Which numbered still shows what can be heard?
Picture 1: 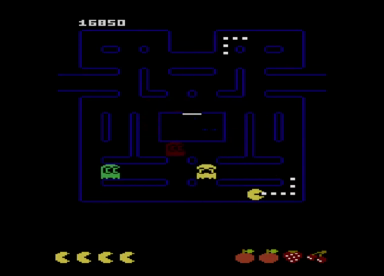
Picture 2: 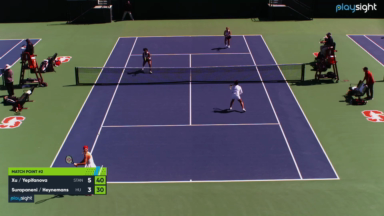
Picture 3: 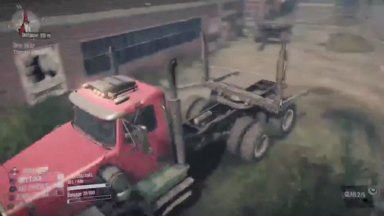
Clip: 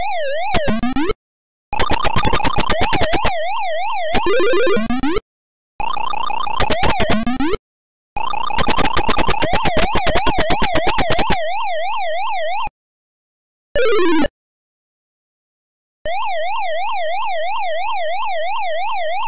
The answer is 1